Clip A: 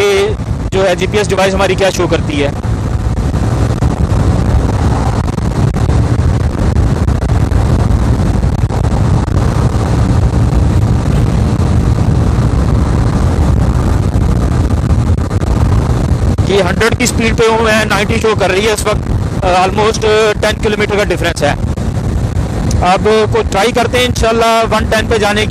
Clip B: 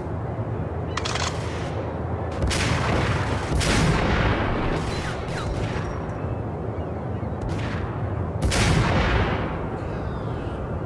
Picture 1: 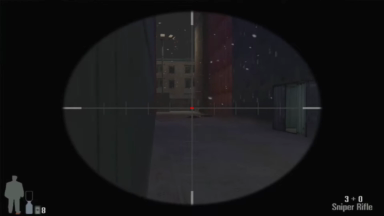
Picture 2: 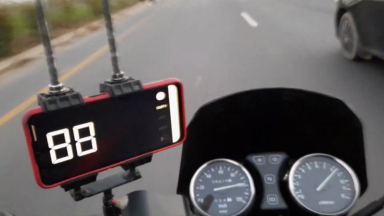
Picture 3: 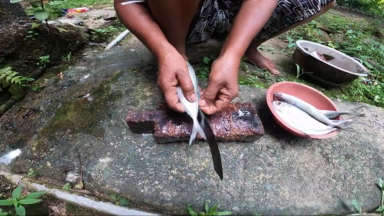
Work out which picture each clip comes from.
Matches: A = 2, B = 1